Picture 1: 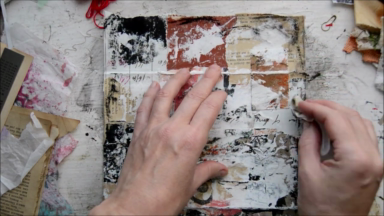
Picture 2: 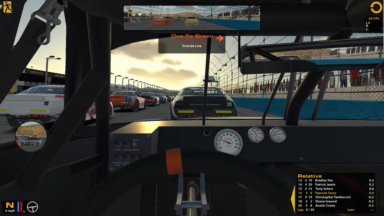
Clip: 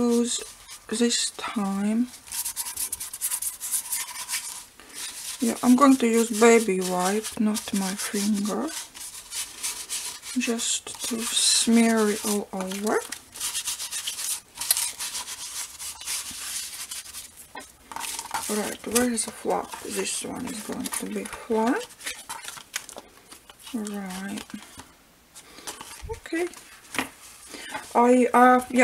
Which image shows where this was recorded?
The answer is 1